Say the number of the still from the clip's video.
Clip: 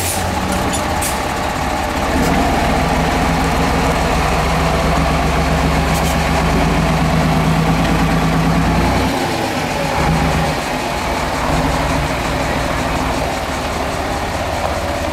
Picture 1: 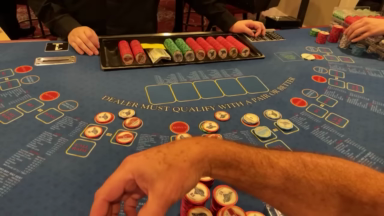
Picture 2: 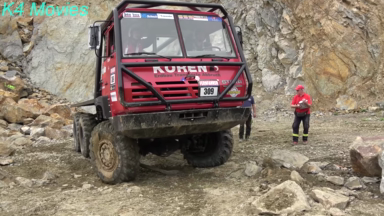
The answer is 2